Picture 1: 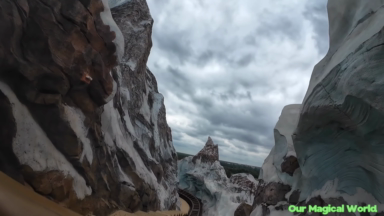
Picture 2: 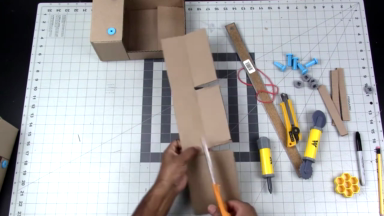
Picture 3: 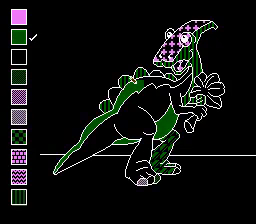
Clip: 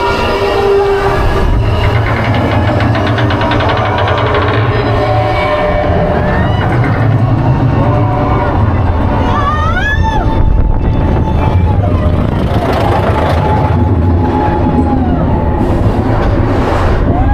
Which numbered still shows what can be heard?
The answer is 1